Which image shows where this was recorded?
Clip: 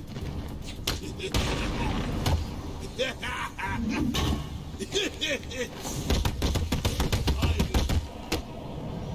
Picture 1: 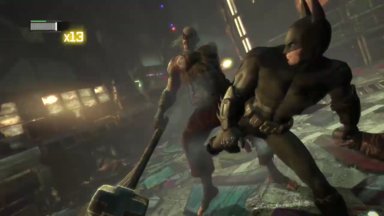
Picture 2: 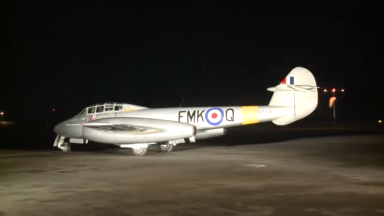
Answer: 1